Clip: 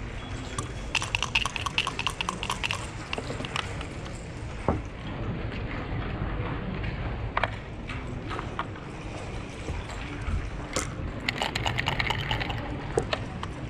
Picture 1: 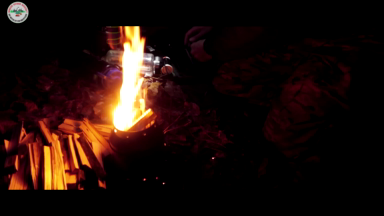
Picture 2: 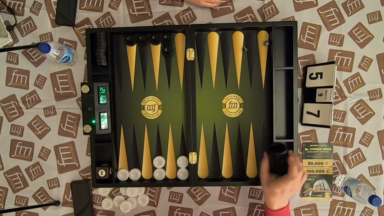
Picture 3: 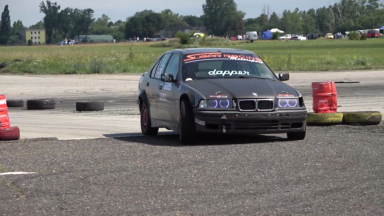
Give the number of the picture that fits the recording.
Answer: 2